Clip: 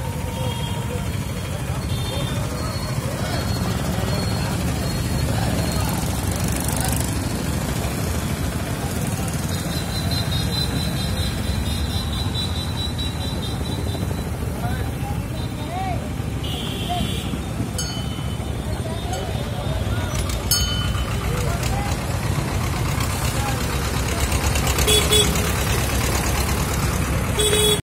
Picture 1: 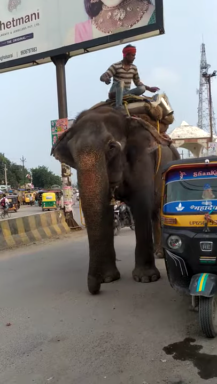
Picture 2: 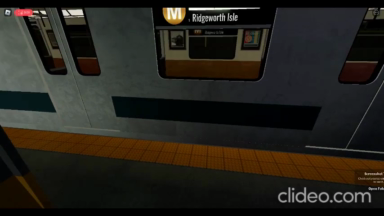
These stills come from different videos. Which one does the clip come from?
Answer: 1